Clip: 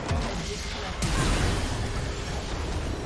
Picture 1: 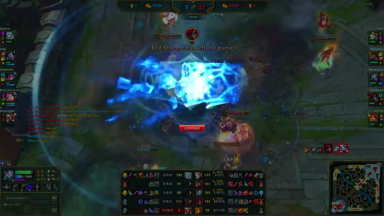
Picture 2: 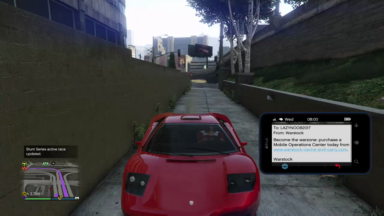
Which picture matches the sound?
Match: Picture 1